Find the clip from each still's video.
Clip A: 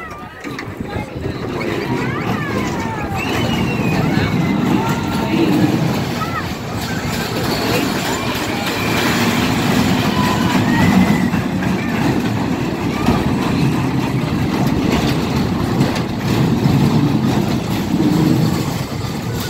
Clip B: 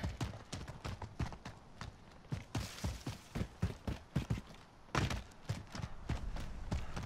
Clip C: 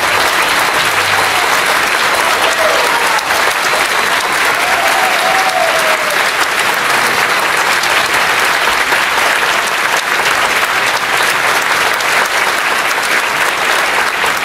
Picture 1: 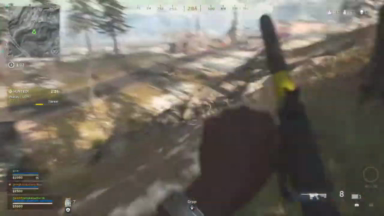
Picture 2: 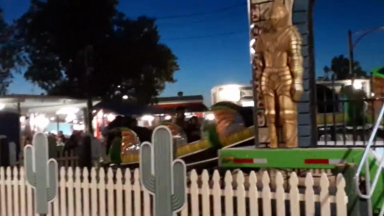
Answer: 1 B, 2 A